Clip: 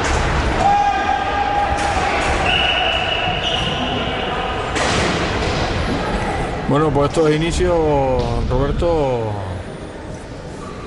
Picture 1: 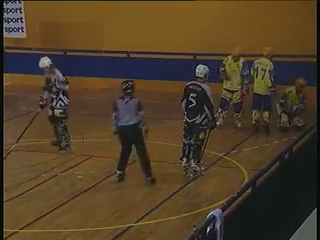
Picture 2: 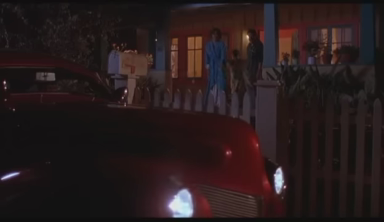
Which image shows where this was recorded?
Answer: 1